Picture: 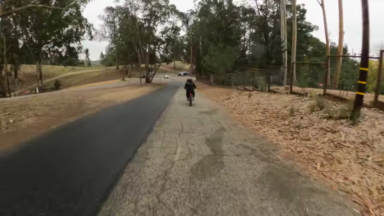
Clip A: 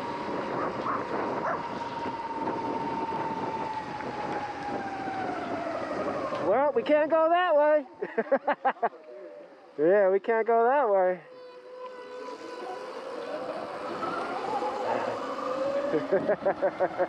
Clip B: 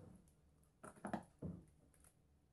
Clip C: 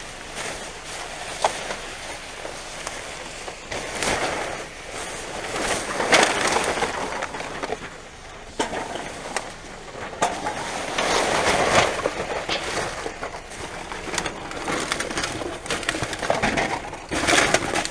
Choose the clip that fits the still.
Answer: A